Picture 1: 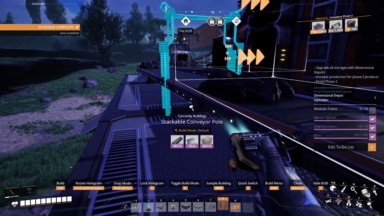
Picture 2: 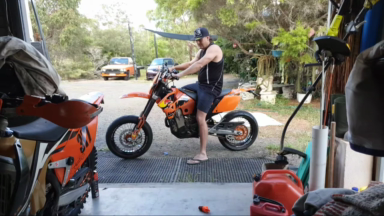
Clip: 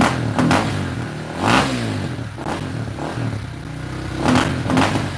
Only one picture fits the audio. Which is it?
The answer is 2